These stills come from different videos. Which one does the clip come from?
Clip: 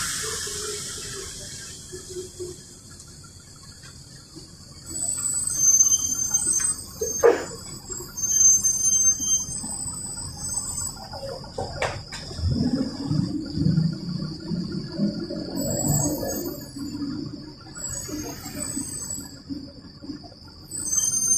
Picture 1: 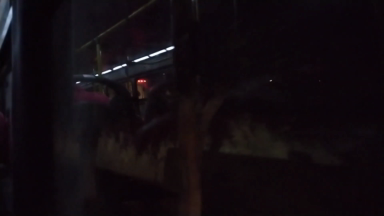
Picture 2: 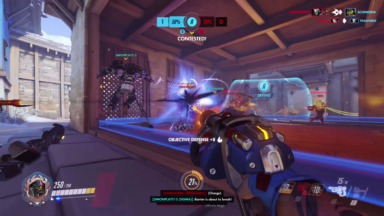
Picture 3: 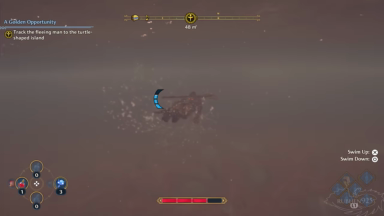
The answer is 1